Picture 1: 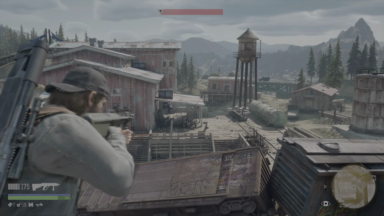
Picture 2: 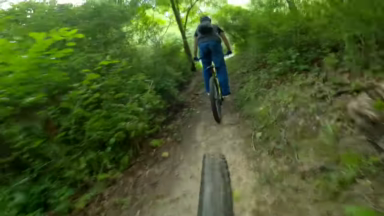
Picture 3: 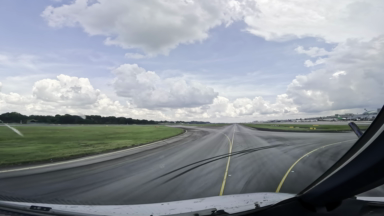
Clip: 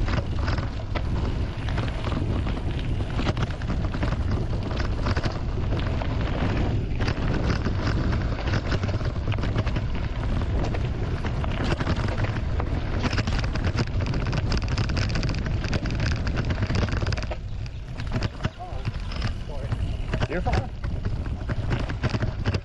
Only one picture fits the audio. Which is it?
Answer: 2